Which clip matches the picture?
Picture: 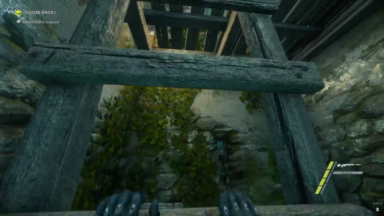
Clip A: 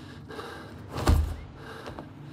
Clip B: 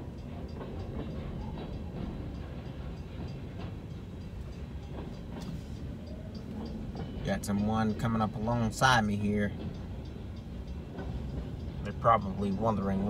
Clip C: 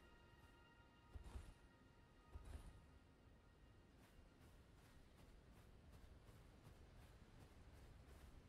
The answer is A